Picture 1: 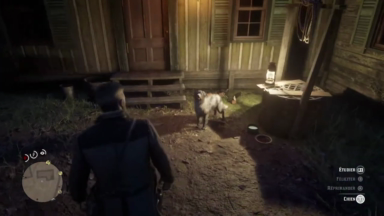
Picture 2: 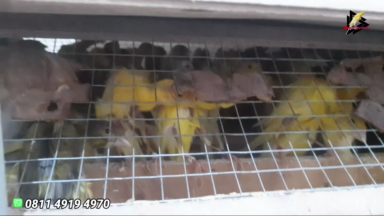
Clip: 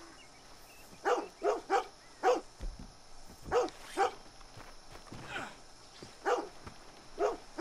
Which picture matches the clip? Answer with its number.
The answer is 1